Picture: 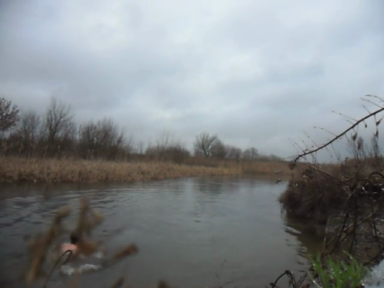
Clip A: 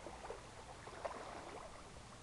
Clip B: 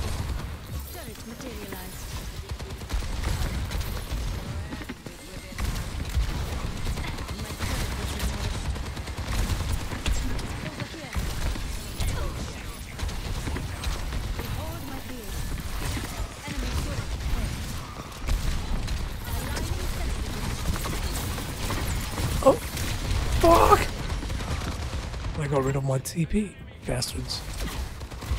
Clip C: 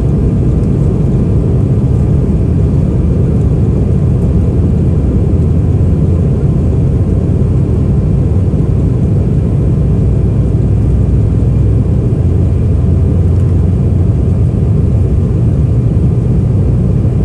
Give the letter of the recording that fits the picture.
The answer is A